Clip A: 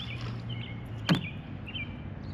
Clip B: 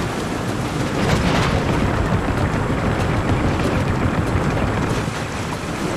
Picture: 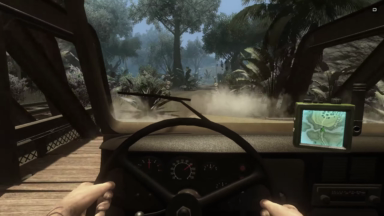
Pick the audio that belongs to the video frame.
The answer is B